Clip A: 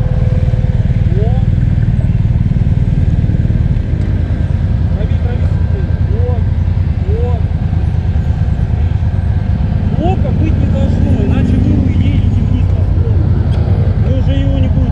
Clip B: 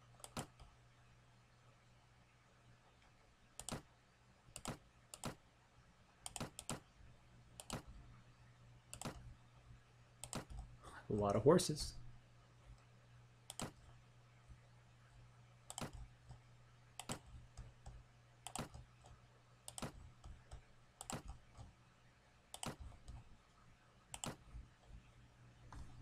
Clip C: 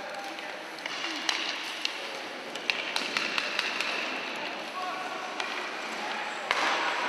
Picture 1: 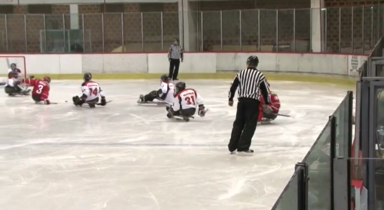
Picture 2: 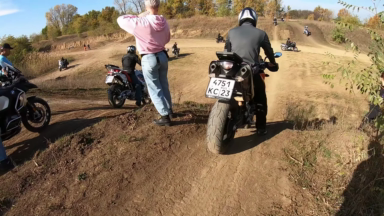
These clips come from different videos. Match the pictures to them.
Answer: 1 C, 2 A